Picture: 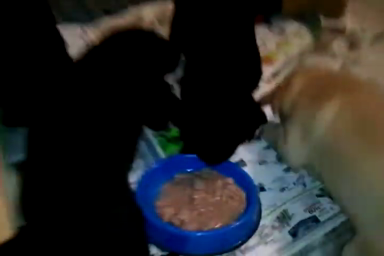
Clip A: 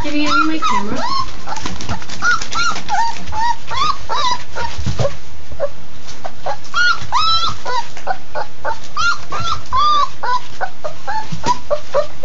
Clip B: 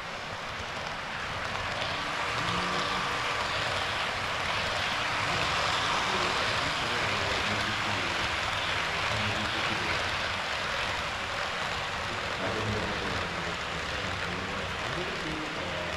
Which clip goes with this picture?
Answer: A